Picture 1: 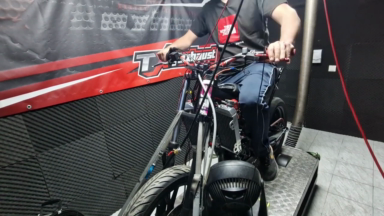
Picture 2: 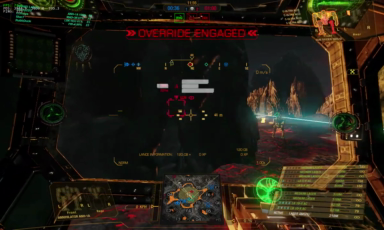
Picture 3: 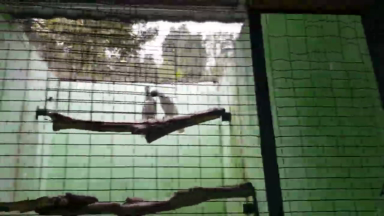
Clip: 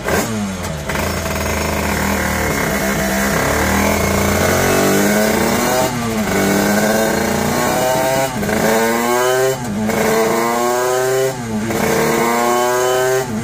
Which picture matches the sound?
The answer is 1